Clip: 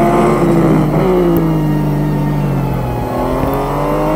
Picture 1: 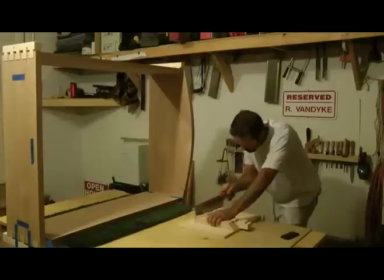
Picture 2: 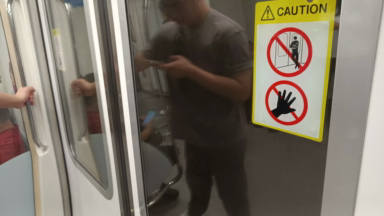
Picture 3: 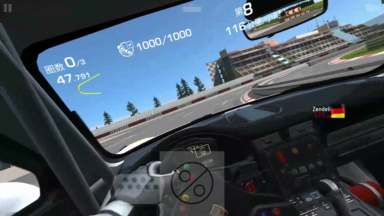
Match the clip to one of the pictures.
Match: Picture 3